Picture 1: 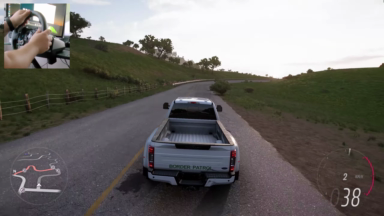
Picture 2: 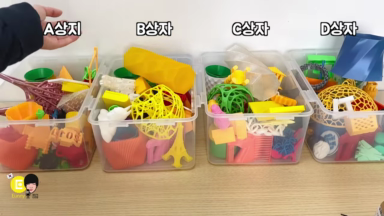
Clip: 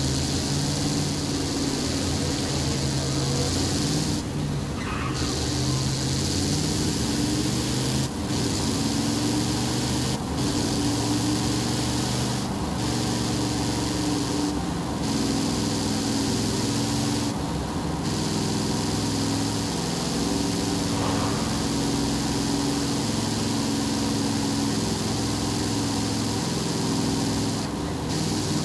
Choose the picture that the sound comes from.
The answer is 1